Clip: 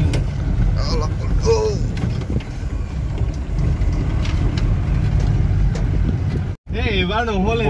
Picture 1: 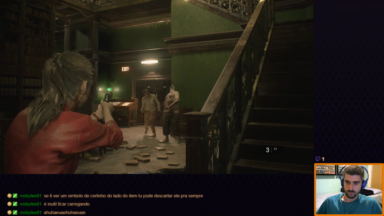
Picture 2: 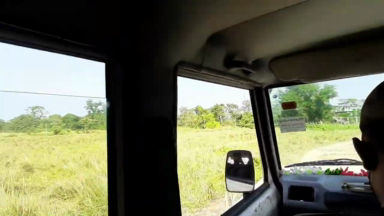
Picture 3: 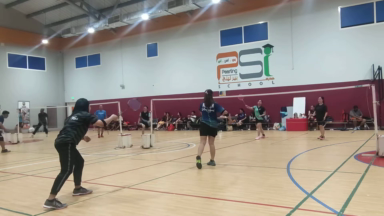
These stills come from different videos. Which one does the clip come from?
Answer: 2